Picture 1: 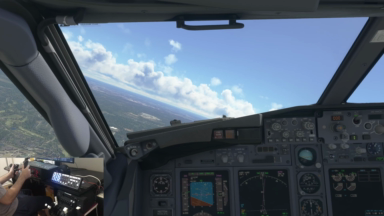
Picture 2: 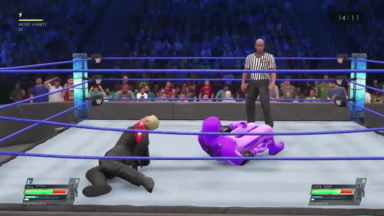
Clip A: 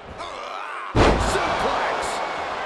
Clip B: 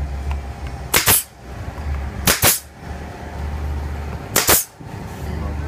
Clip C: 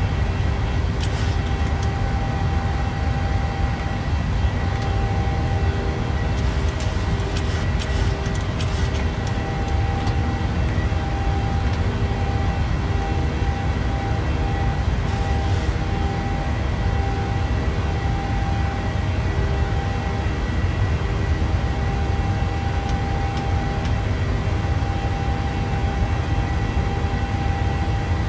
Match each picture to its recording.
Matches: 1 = C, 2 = A